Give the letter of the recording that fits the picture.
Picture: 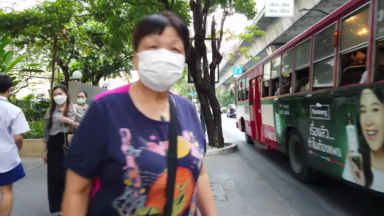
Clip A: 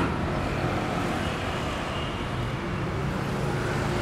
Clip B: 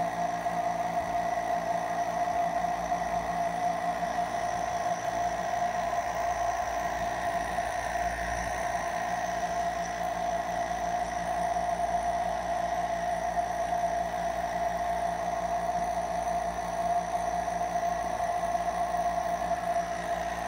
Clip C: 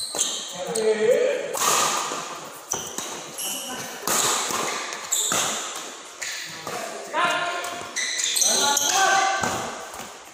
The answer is A